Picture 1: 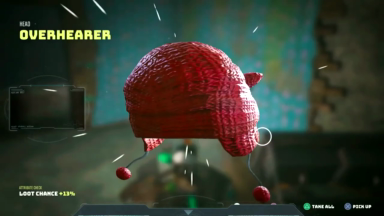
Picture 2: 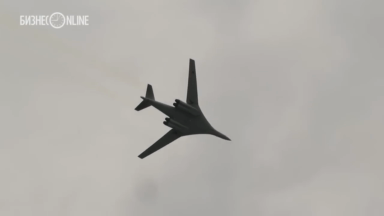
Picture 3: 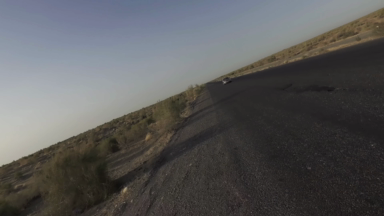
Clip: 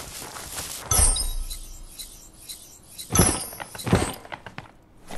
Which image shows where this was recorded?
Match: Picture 1